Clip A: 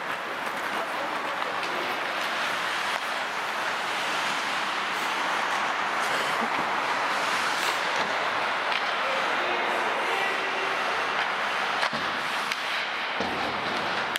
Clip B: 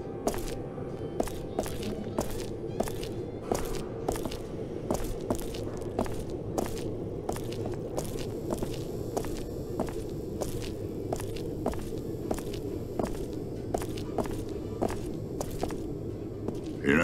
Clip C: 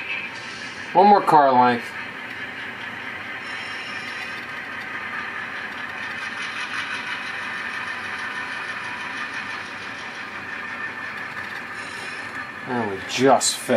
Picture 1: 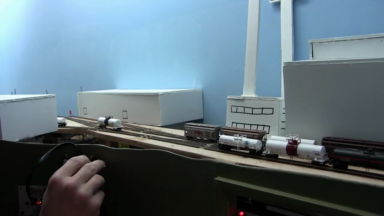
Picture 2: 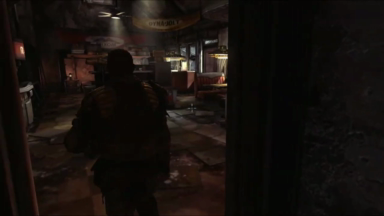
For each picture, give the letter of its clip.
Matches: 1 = C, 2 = B